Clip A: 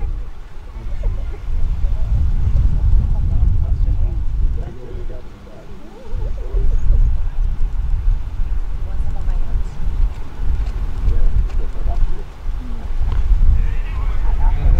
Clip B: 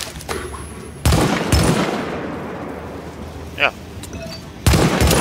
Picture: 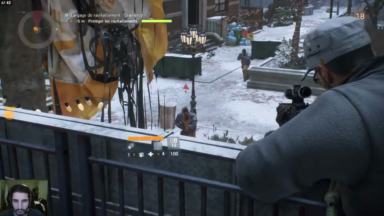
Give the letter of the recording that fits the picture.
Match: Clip B